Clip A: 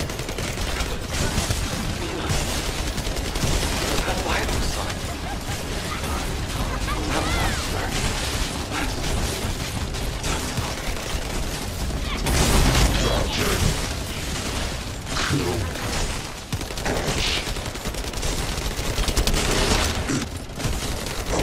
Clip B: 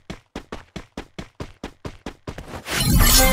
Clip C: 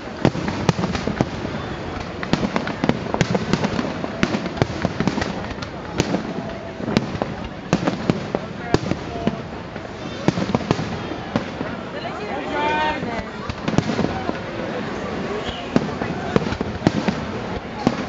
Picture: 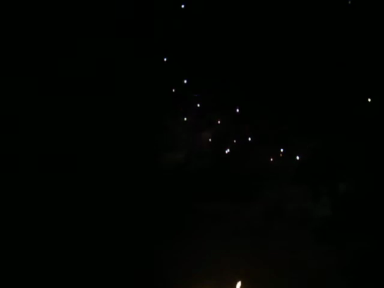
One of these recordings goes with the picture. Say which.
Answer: C